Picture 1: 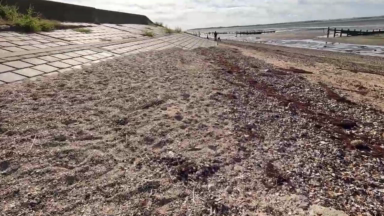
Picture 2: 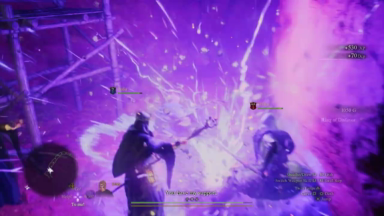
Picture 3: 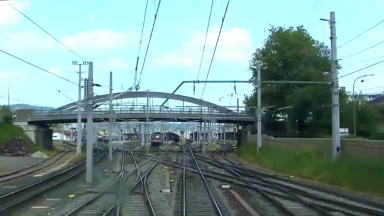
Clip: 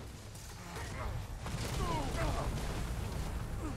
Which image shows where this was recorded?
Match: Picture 2